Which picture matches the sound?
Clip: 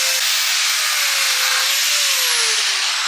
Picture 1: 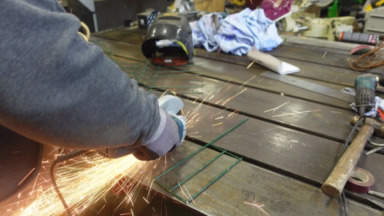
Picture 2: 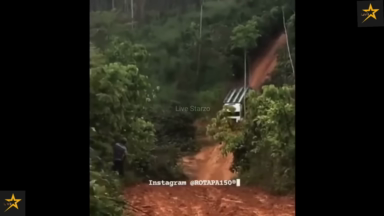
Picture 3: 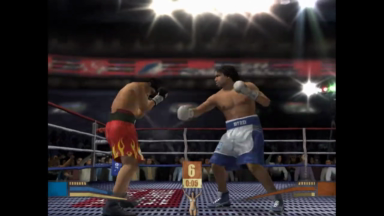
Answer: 1